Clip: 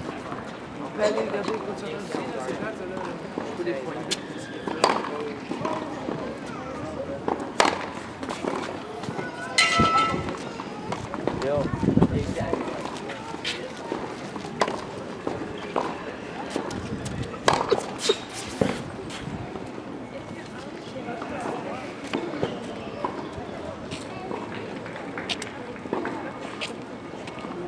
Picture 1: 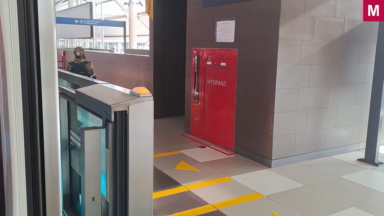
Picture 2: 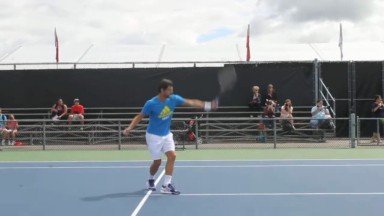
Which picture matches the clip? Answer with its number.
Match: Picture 2